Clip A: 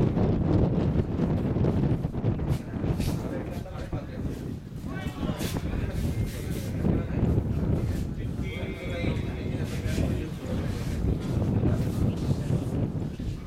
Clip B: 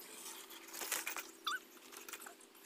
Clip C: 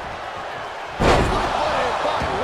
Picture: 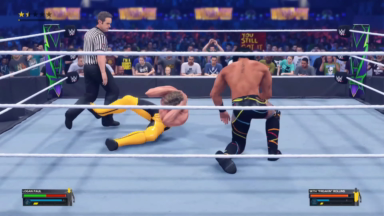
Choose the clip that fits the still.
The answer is C